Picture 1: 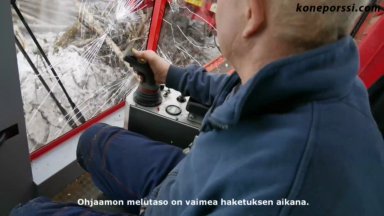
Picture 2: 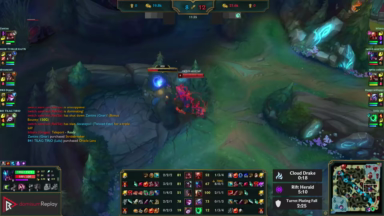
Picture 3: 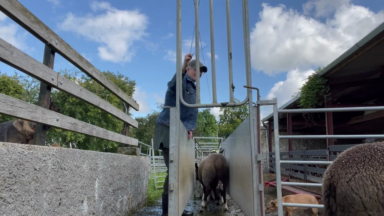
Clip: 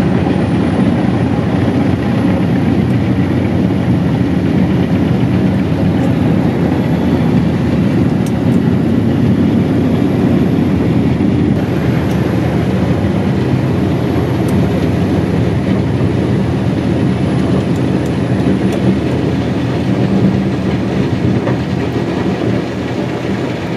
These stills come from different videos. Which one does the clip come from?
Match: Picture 1